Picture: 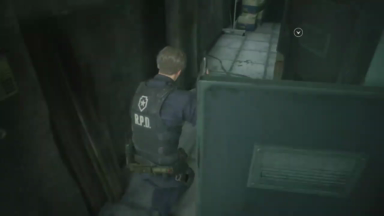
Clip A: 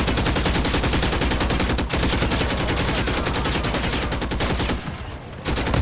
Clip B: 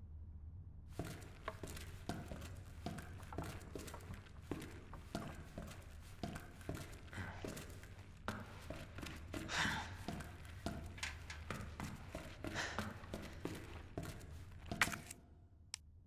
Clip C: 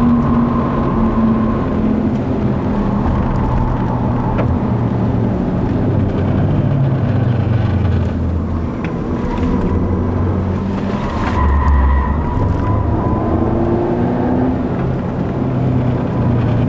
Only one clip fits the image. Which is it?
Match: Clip B